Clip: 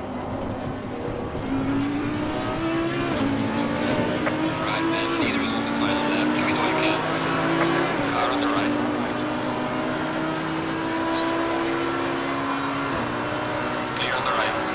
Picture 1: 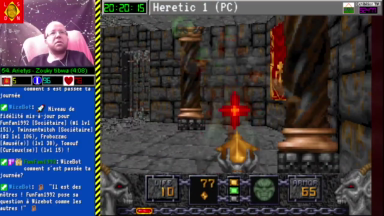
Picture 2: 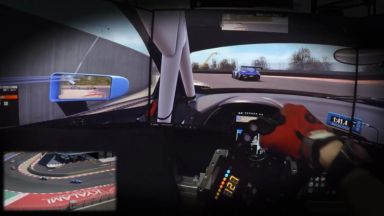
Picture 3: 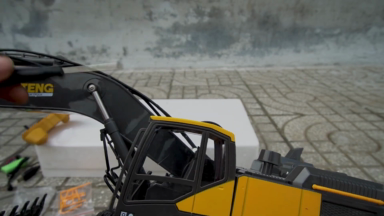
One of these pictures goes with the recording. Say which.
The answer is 2